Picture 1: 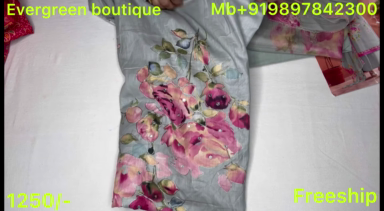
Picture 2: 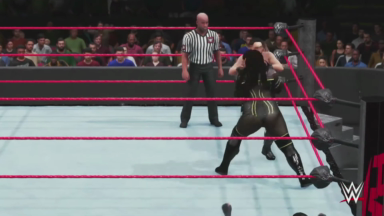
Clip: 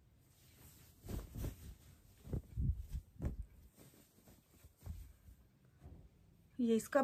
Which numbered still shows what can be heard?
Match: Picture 1